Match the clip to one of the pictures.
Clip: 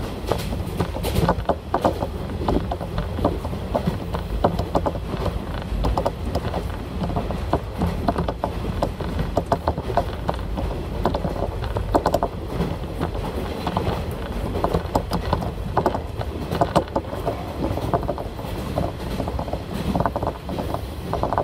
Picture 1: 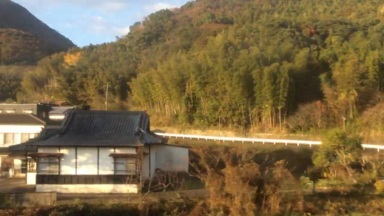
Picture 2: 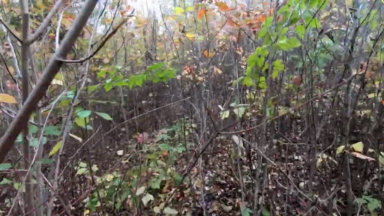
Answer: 1